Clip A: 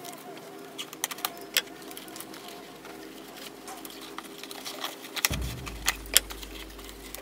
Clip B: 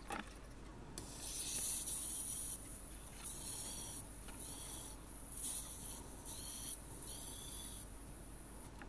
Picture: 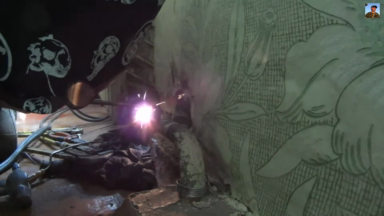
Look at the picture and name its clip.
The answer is B